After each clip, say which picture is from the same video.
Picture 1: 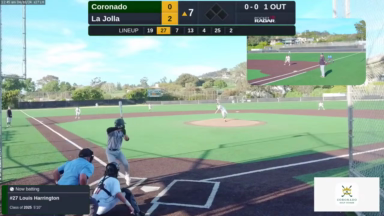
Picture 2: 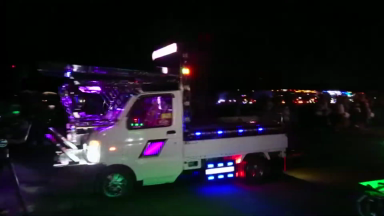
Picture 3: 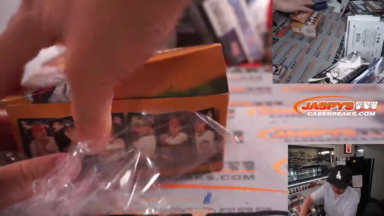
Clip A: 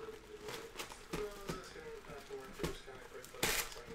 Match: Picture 3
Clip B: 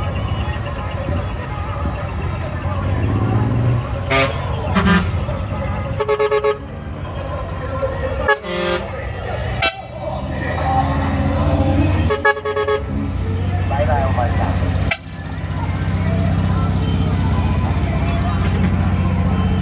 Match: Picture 2